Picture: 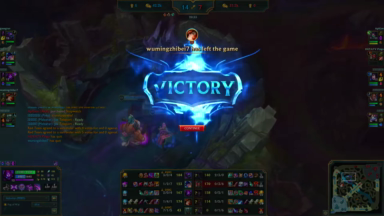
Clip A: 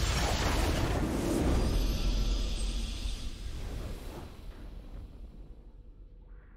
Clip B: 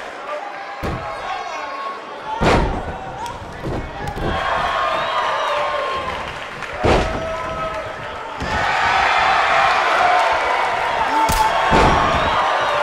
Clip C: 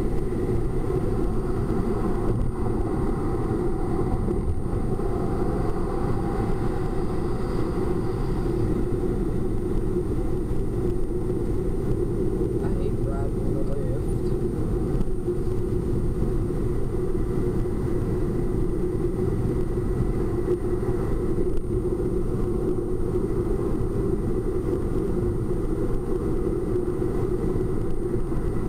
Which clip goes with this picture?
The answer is A